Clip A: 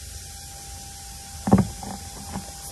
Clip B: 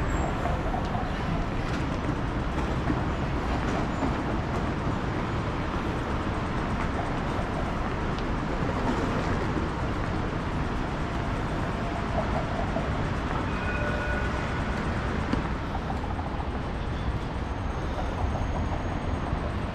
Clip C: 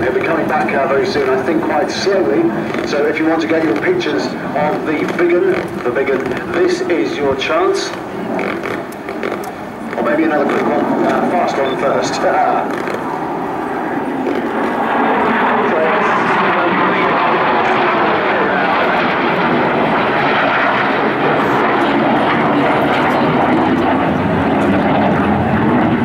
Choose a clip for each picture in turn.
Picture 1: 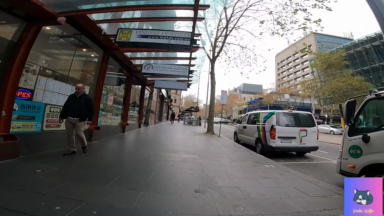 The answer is B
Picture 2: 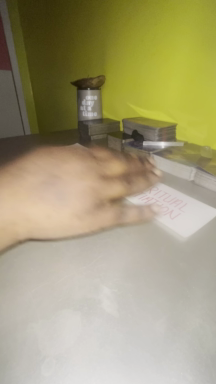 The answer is A